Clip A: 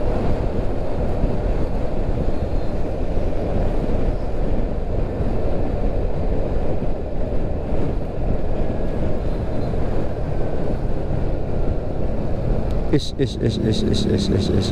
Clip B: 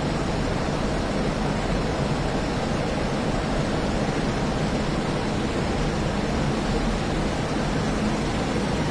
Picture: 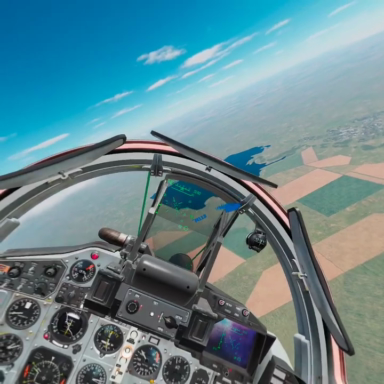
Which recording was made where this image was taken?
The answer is B